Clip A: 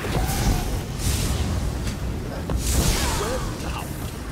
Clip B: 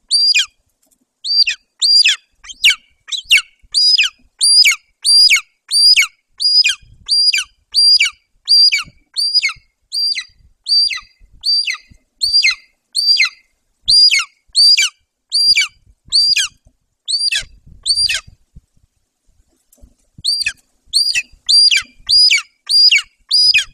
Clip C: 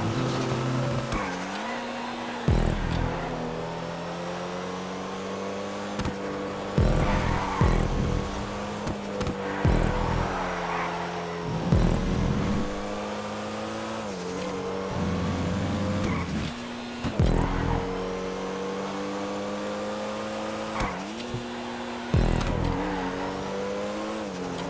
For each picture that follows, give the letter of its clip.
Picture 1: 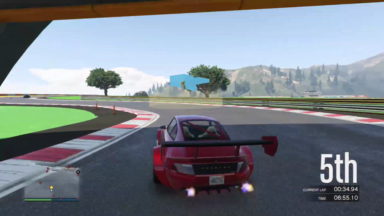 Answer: C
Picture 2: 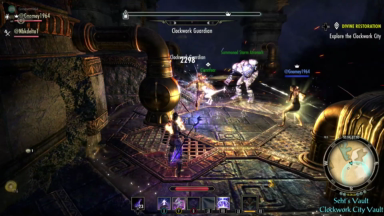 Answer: A